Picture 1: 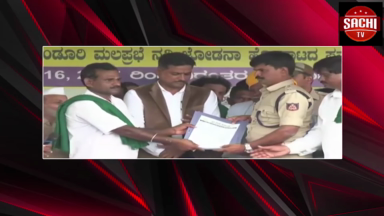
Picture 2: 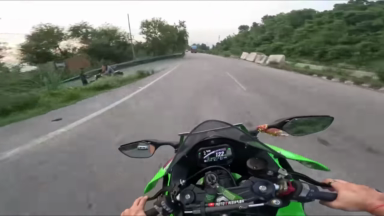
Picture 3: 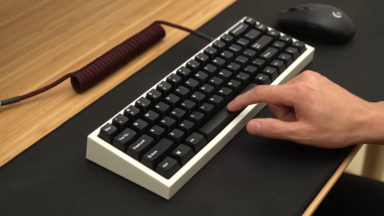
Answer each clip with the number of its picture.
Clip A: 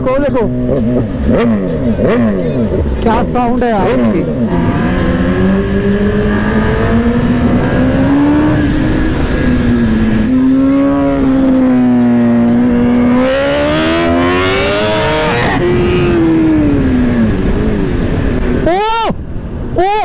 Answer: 2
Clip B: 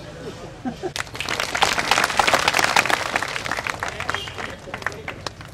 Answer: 1